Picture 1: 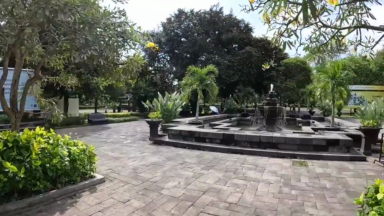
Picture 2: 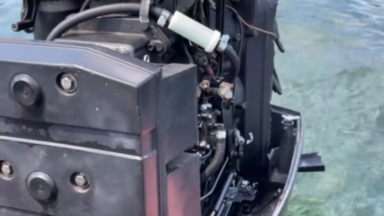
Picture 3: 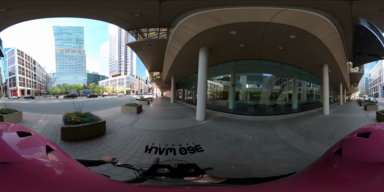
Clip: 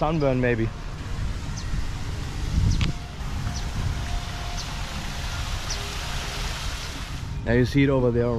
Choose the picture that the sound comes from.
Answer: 1